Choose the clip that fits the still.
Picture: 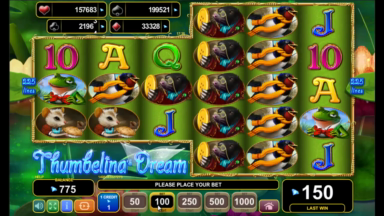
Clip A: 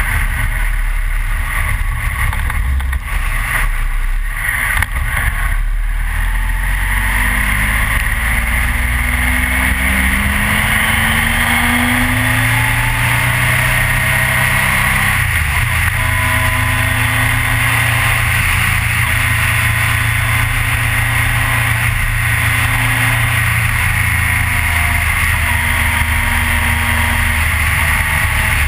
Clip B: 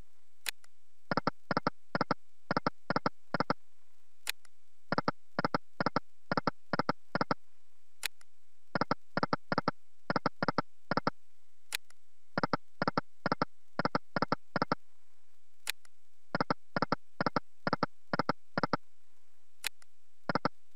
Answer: B